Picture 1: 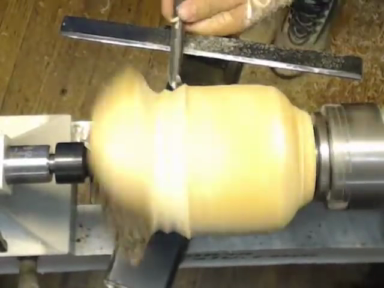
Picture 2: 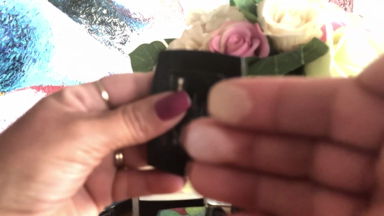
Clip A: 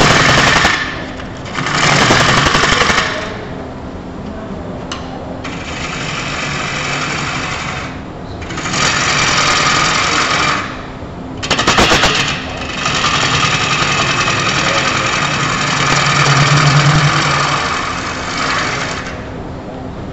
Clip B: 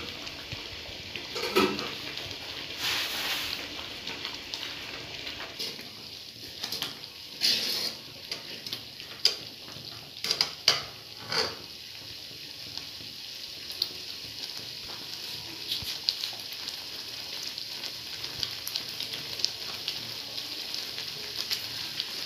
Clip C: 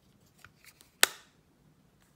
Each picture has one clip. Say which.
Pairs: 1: A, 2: C